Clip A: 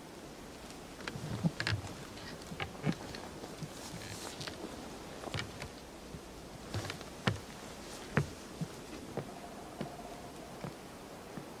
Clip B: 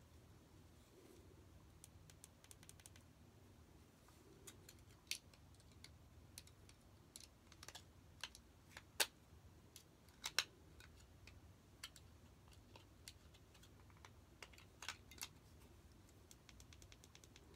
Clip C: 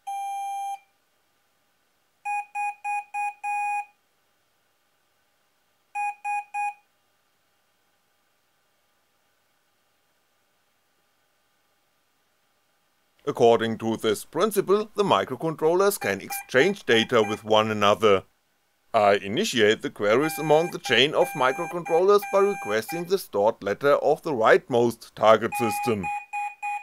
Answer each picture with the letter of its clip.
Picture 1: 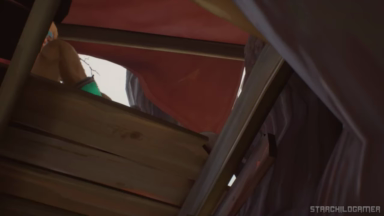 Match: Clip A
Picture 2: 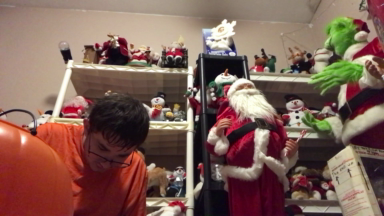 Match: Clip B